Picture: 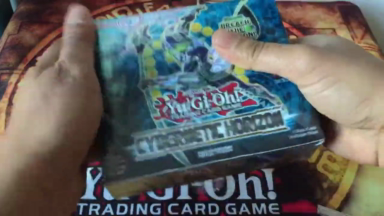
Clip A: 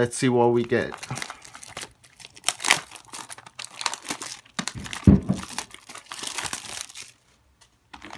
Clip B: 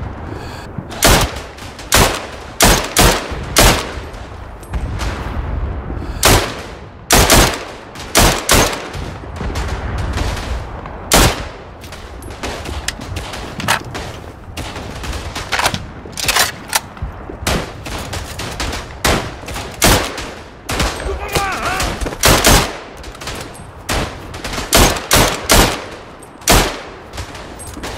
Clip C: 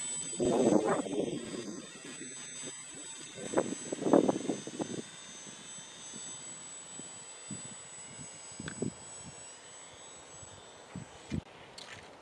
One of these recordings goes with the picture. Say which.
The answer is A